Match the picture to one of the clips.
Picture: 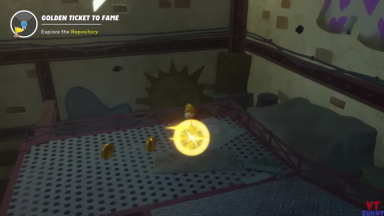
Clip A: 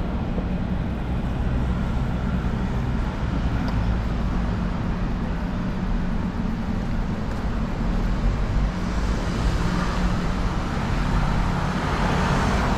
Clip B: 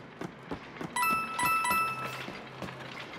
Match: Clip B